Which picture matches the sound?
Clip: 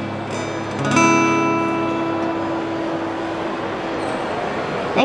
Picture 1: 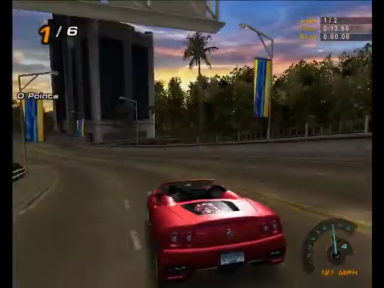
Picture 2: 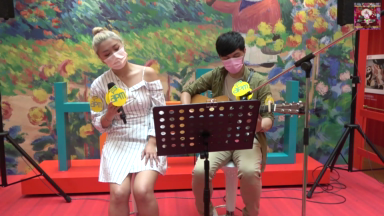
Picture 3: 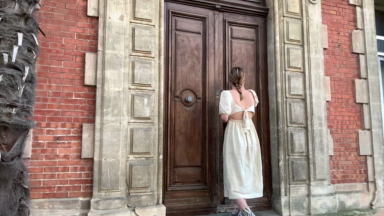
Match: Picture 2